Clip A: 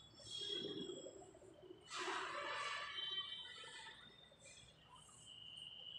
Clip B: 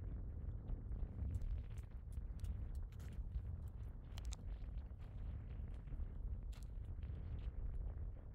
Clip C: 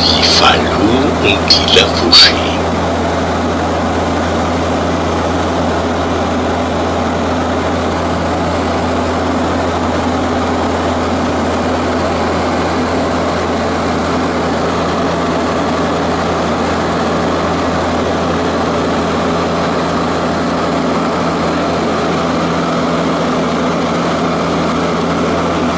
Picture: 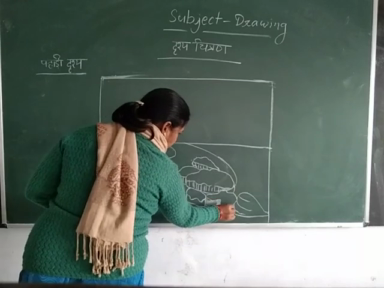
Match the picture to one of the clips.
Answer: A